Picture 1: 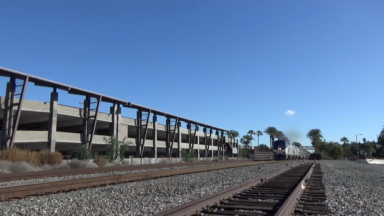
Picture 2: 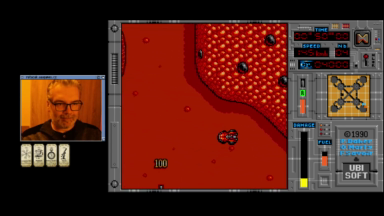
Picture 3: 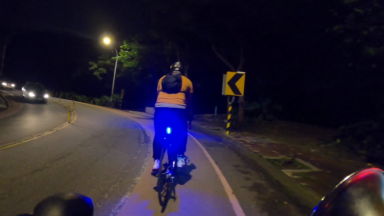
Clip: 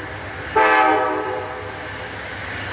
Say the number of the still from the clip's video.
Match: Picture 1